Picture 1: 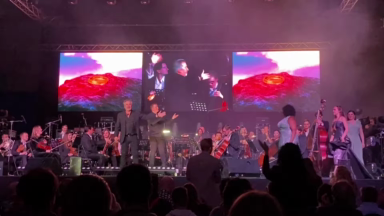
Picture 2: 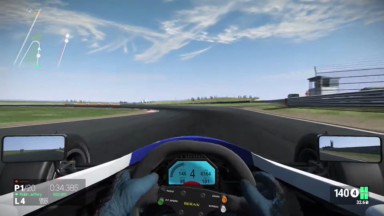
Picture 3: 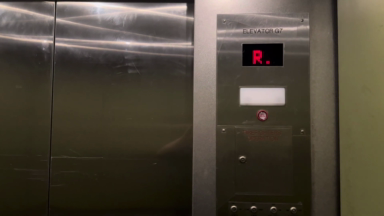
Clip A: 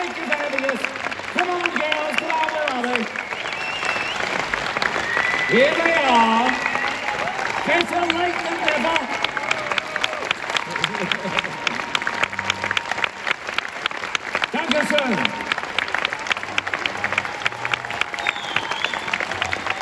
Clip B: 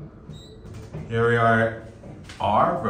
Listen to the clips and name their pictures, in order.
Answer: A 1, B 3